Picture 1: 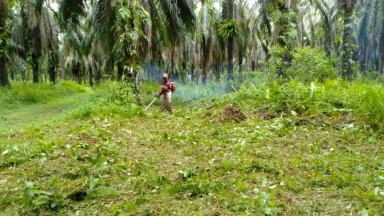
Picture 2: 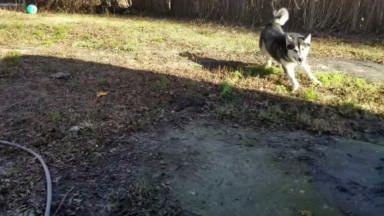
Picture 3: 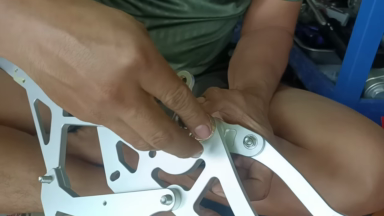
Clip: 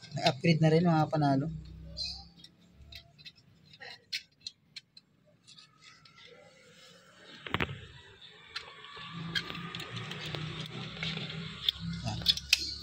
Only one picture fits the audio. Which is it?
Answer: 3